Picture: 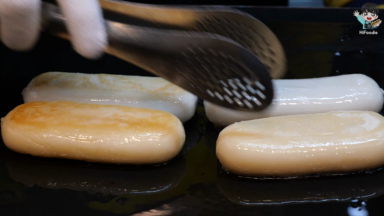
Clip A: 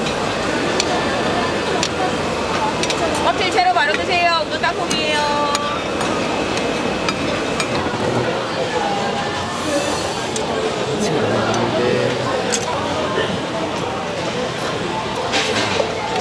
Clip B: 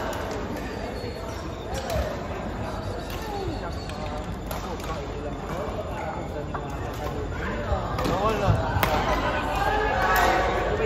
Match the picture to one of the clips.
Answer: A